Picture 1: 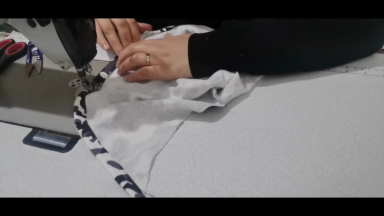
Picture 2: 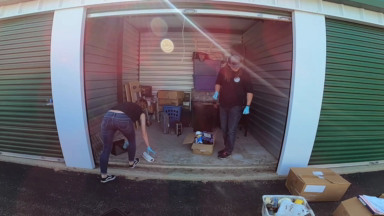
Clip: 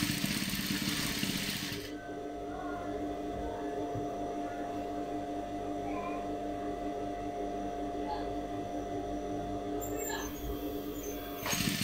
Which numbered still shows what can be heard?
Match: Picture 1